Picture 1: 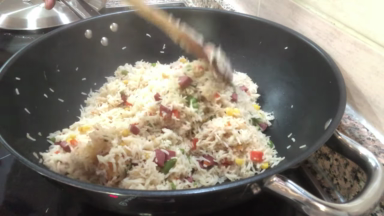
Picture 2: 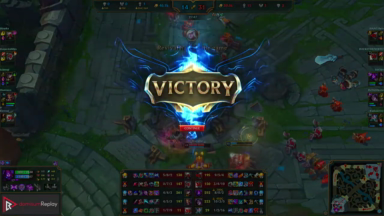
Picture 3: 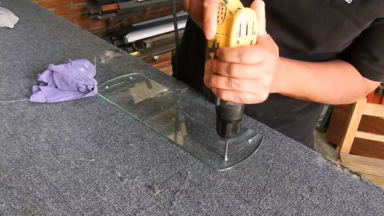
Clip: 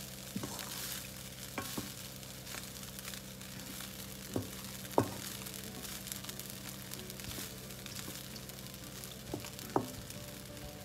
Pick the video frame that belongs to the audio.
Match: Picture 1